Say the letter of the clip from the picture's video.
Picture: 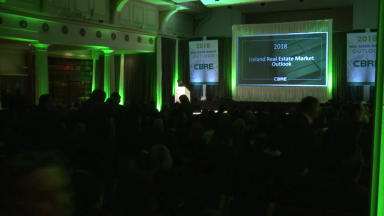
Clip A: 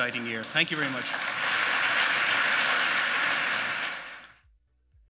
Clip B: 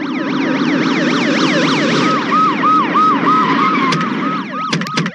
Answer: A